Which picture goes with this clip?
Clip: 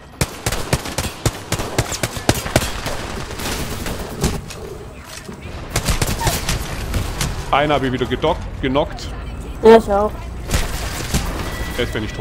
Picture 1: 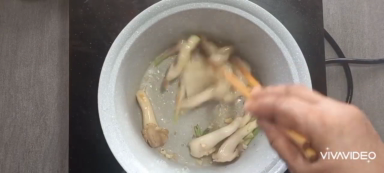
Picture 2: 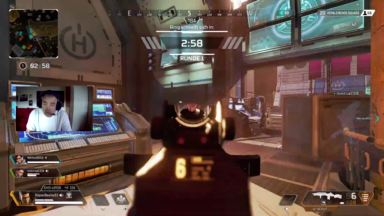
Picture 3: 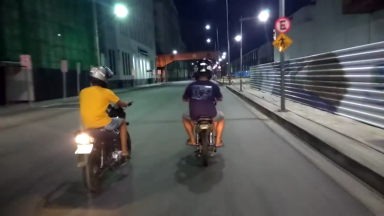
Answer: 2